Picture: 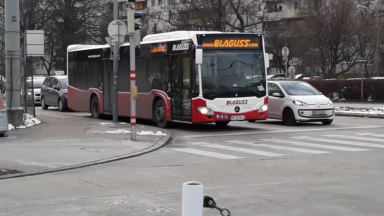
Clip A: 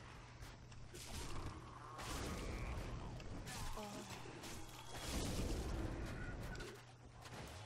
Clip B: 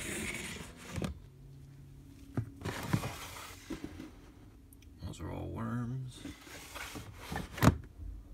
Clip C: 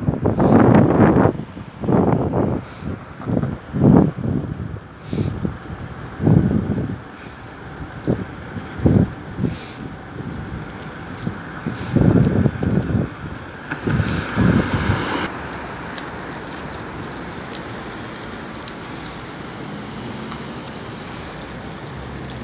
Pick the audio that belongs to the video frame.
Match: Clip C